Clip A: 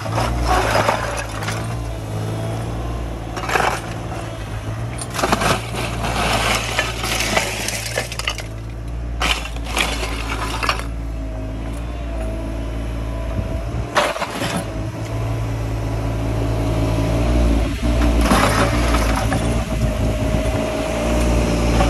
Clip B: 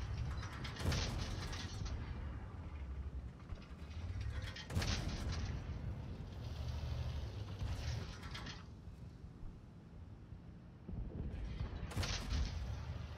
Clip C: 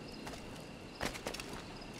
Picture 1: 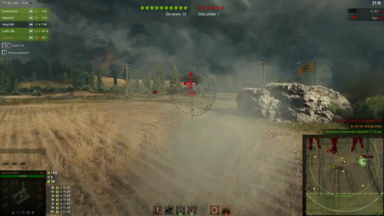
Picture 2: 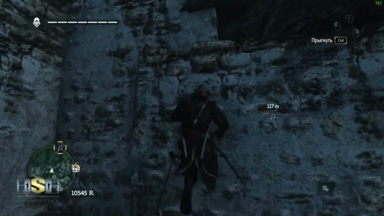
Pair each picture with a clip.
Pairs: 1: B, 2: C